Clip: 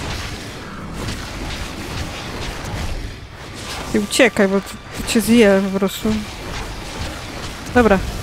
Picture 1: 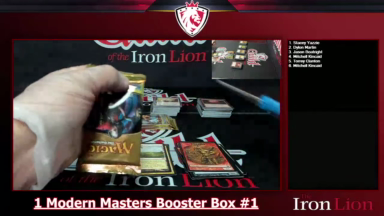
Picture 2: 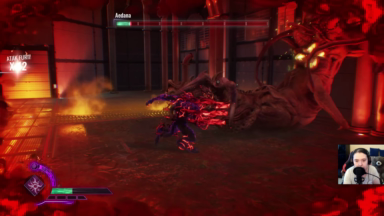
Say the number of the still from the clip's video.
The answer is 2